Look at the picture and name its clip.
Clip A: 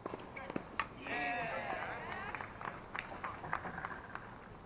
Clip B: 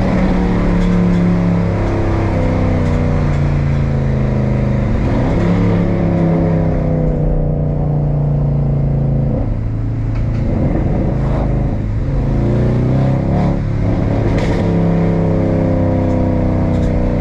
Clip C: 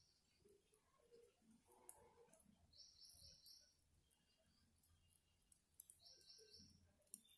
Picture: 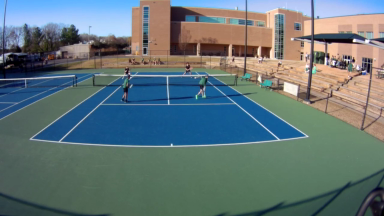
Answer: A